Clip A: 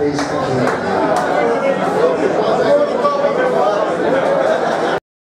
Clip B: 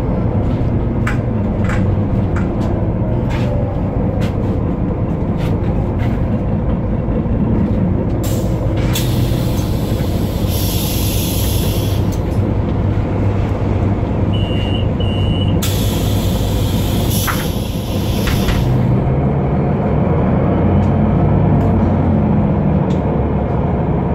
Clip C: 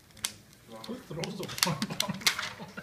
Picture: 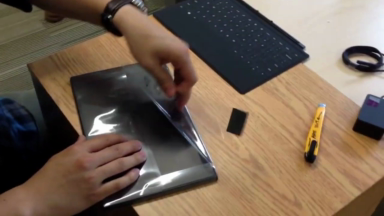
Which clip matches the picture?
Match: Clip C